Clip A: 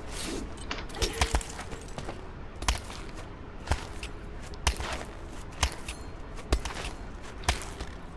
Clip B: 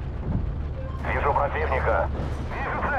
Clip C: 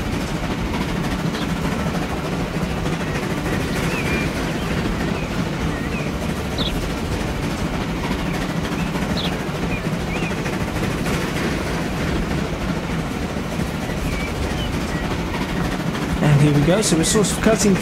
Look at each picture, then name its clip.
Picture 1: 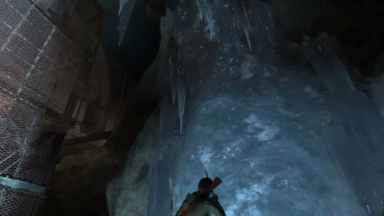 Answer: A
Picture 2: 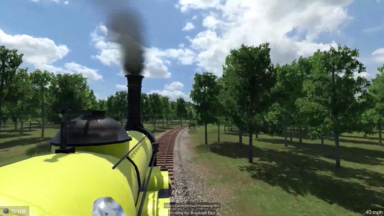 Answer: C